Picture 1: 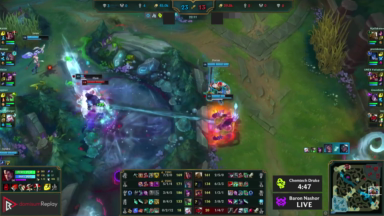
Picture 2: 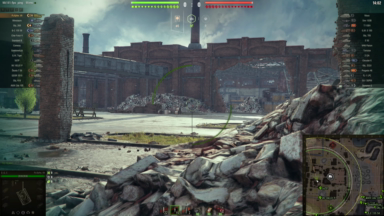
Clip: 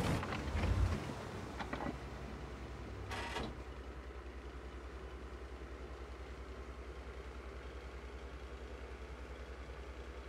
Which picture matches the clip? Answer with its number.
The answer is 2